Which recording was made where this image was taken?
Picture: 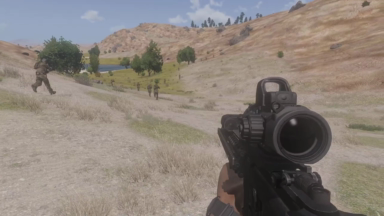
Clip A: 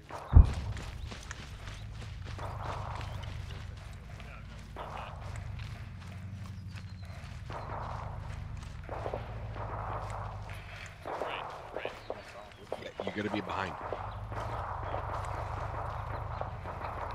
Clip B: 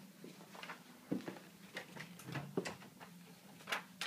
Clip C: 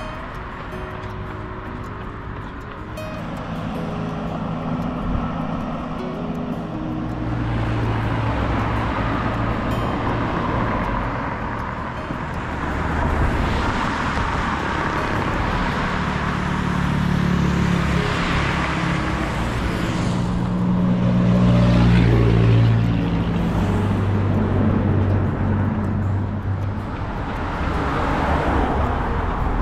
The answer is A